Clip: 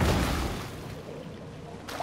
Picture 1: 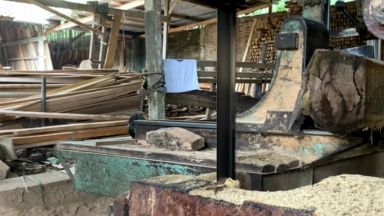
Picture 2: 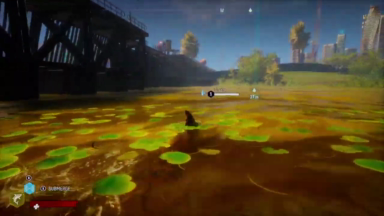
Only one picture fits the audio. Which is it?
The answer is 2